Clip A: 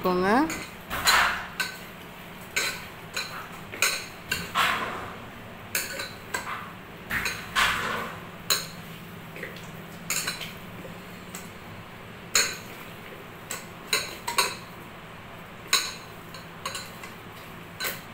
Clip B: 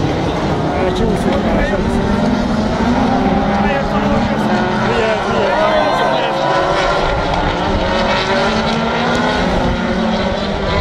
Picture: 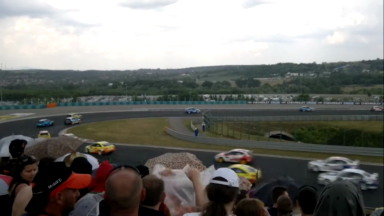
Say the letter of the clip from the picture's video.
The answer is B